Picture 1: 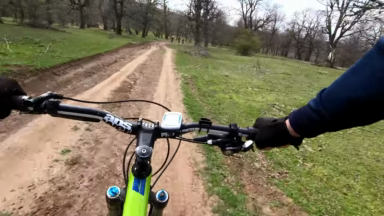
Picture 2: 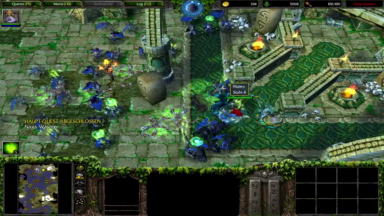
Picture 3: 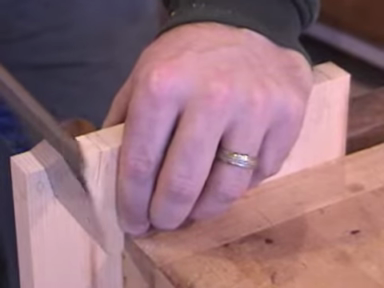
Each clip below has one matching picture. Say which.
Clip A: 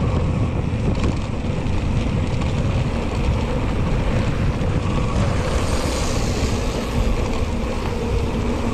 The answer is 1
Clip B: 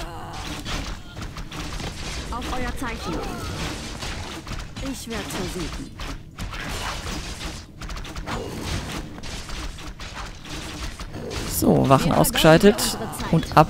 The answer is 2